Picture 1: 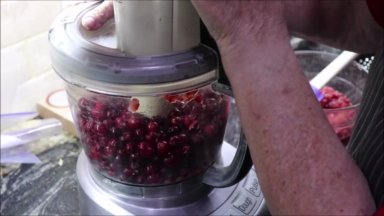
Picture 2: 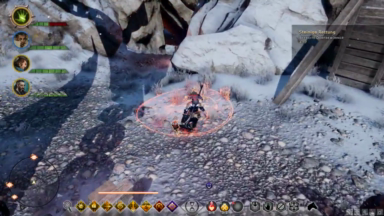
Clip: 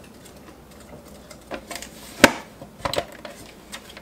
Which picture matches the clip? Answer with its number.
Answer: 1